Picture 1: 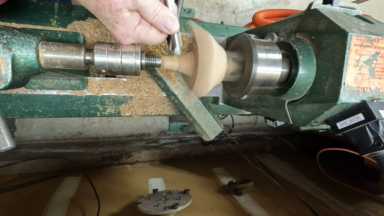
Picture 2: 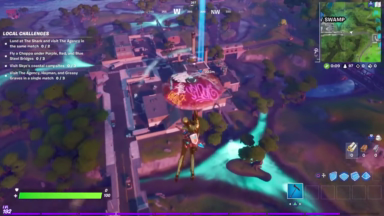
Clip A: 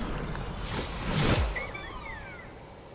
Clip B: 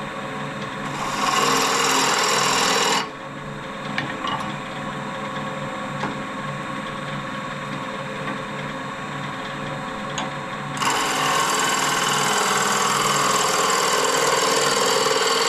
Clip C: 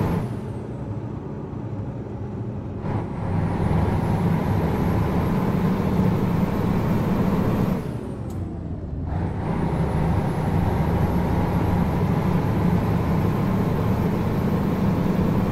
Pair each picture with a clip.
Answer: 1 B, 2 A